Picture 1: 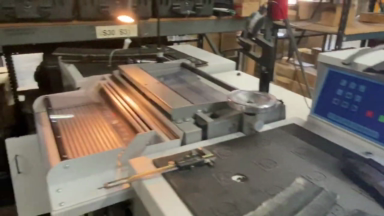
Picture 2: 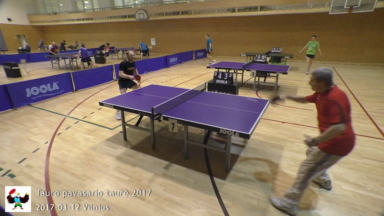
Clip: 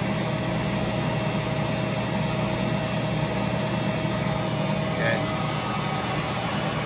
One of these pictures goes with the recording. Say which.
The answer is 1